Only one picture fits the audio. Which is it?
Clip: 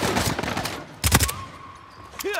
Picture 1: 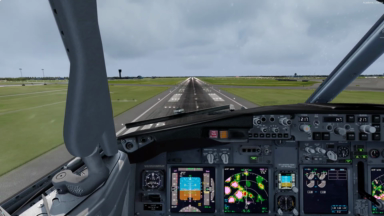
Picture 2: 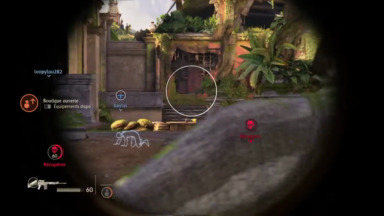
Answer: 2